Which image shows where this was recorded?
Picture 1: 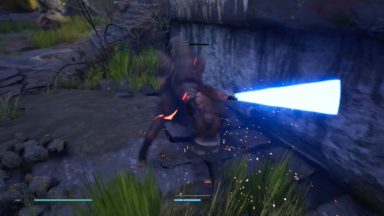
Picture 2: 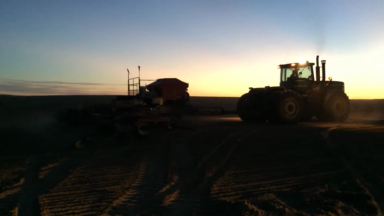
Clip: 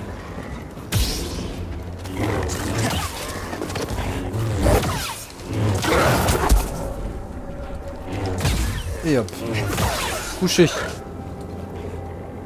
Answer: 1